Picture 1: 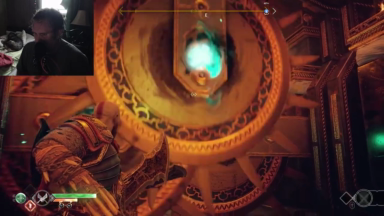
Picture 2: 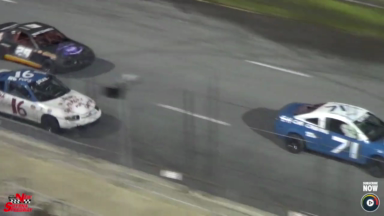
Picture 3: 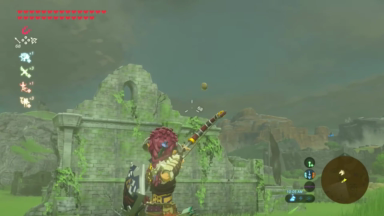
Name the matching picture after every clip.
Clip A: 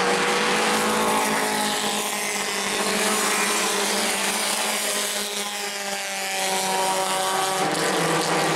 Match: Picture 2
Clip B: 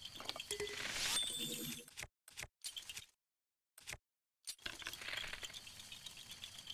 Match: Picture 3